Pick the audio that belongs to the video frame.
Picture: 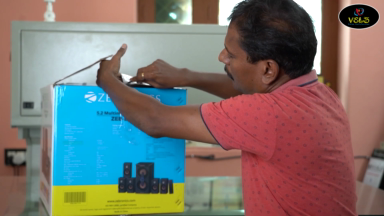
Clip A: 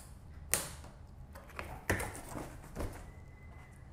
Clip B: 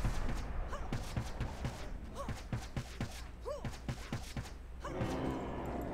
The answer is A